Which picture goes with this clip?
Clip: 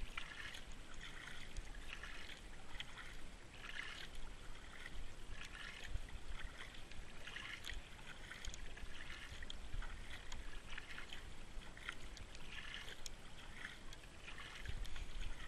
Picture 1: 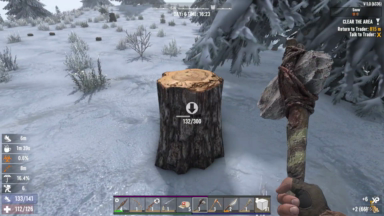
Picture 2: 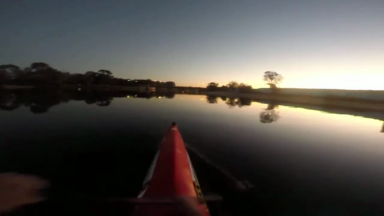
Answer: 2